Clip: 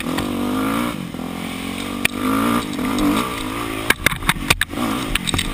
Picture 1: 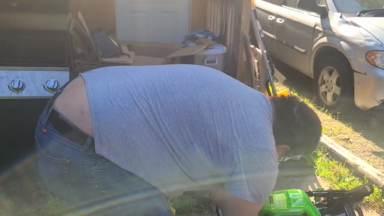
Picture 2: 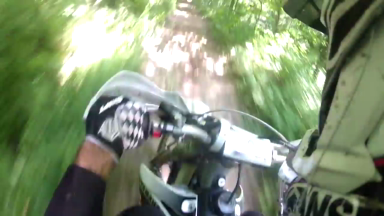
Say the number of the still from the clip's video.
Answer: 2